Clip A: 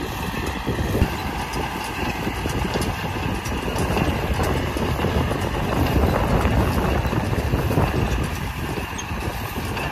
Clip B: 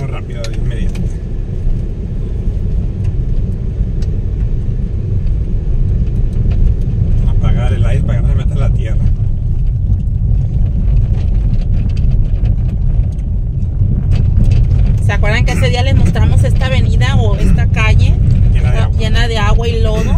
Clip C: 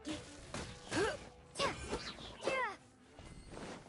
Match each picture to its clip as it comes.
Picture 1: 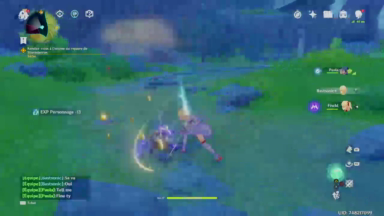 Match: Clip C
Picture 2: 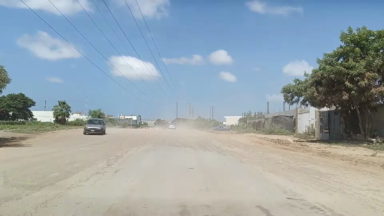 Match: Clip B